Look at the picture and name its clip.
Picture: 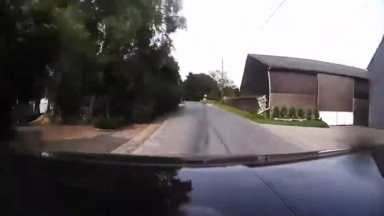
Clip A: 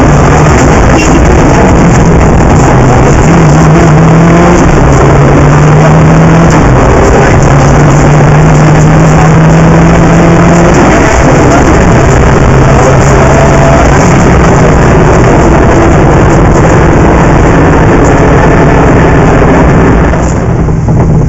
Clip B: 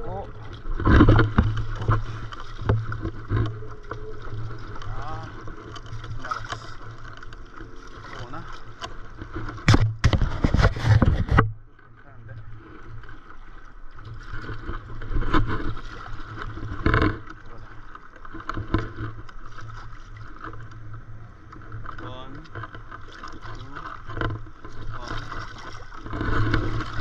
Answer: A